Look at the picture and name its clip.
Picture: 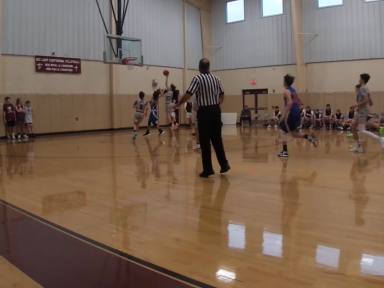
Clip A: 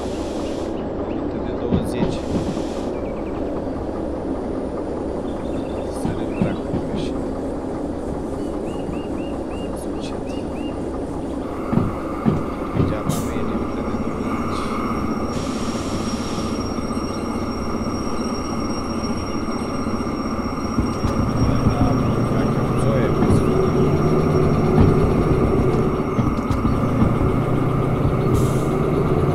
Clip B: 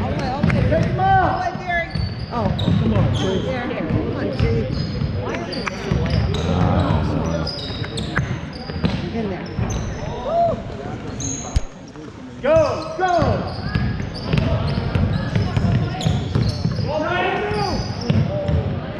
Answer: B